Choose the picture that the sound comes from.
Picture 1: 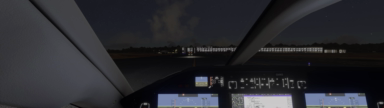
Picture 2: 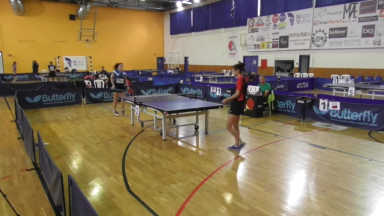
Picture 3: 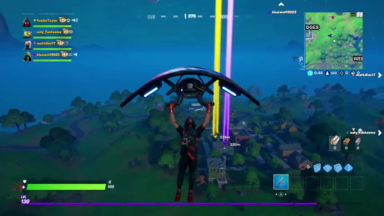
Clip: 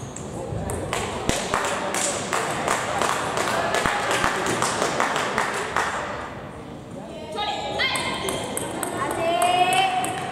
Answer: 2